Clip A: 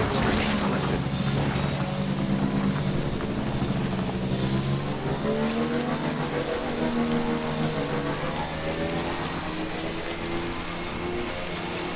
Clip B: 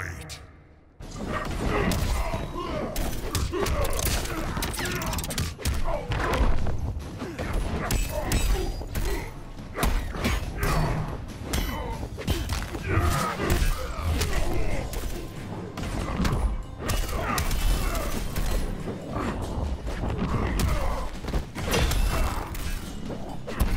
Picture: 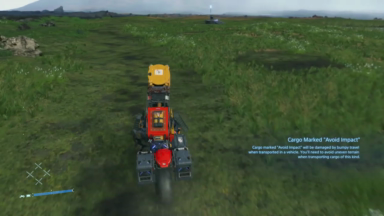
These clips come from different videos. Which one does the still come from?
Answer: A